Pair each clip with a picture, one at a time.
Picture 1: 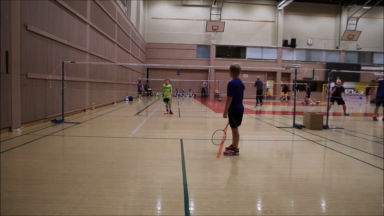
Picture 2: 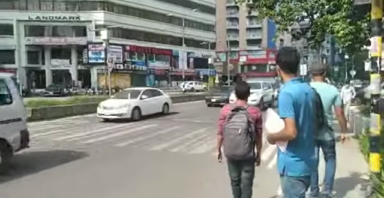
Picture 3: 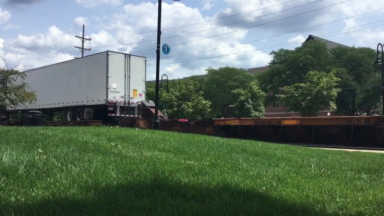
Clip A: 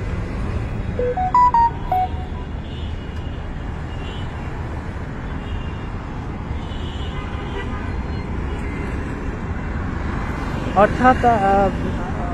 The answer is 2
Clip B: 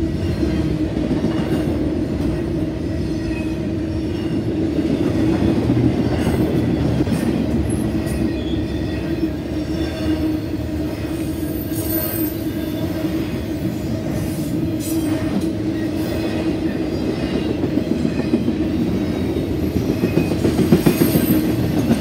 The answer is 3